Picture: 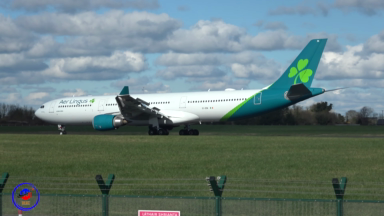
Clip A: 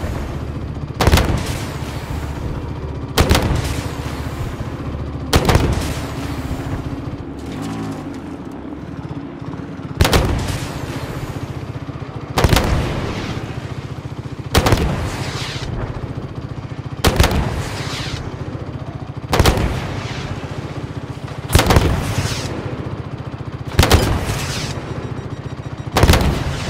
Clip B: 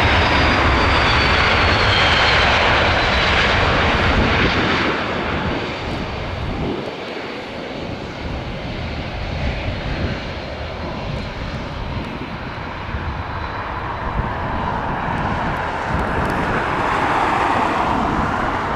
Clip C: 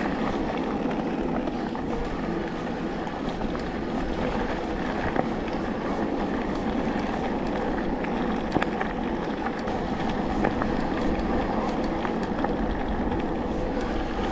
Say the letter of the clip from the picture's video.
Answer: B